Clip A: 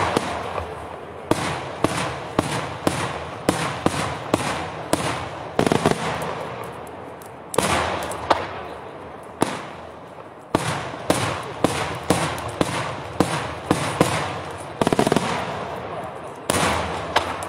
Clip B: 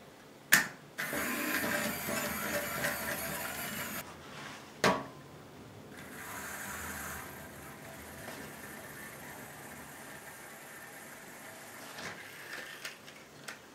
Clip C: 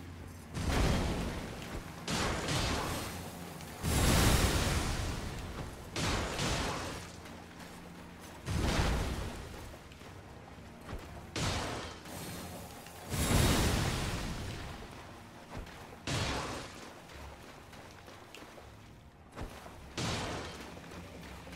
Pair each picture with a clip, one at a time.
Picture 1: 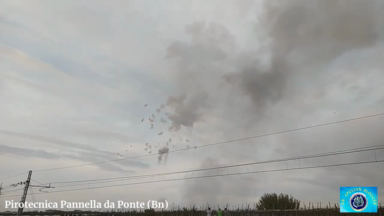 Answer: A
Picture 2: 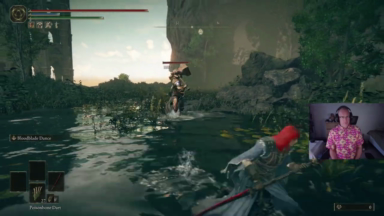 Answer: C